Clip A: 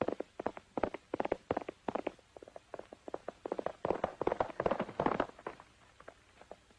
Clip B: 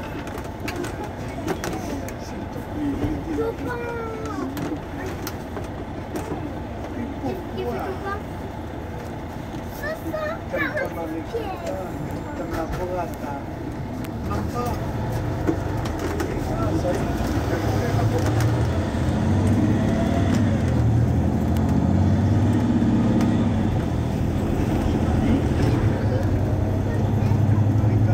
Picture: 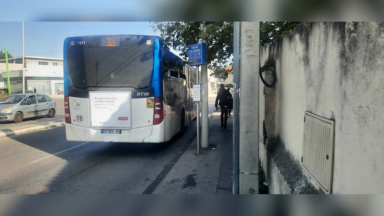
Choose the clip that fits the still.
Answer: B